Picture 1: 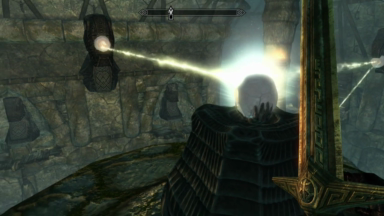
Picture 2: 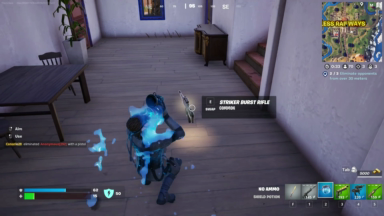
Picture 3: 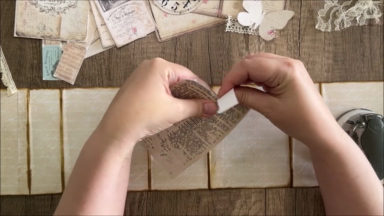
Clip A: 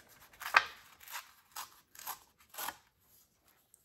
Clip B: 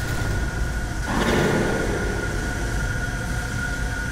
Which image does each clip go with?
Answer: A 3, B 1